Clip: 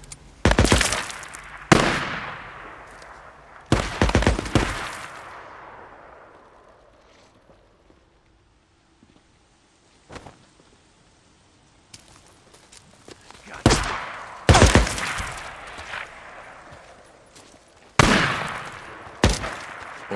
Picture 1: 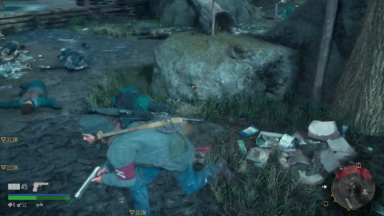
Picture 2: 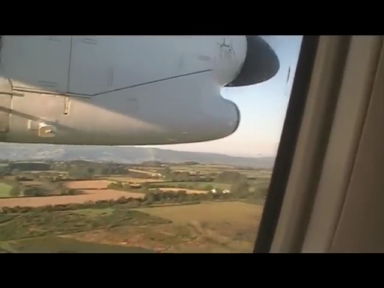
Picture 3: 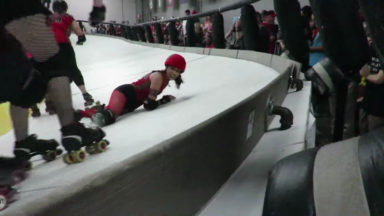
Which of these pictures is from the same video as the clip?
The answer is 1